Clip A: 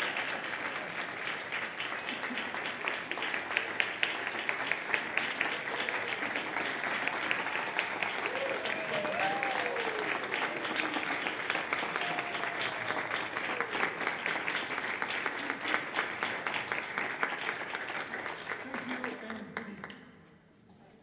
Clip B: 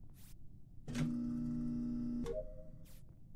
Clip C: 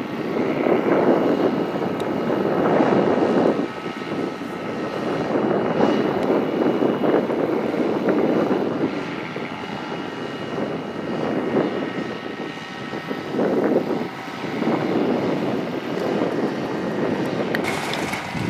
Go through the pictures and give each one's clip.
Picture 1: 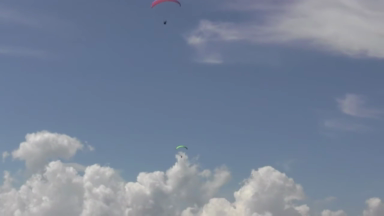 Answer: C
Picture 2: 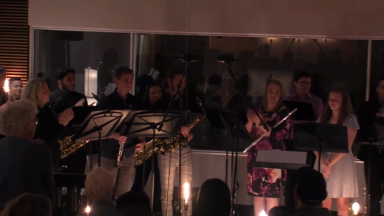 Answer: A